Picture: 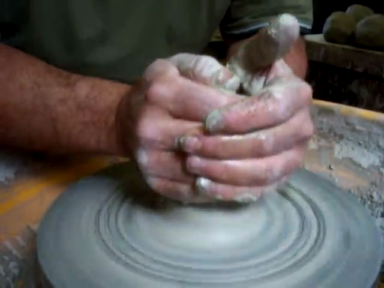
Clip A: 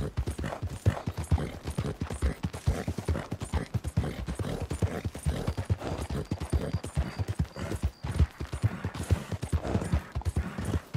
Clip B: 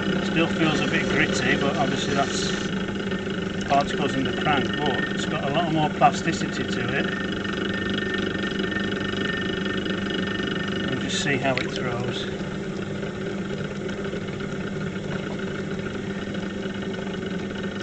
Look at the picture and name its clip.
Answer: B